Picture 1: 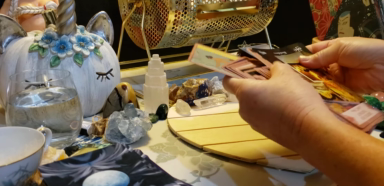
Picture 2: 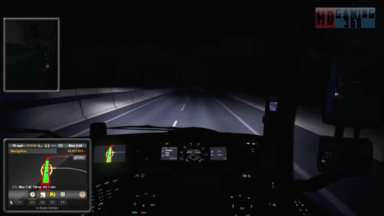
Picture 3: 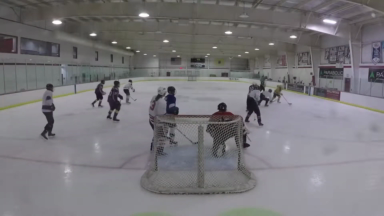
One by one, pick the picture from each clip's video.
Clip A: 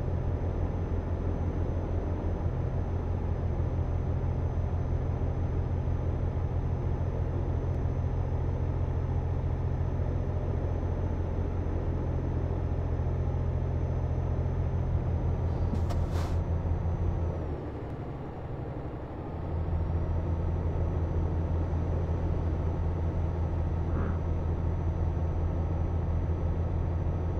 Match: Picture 2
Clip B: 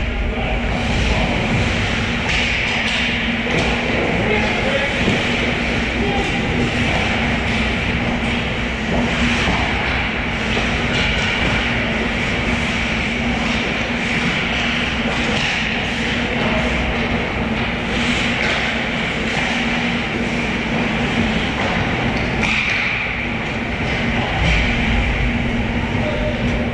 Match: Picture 3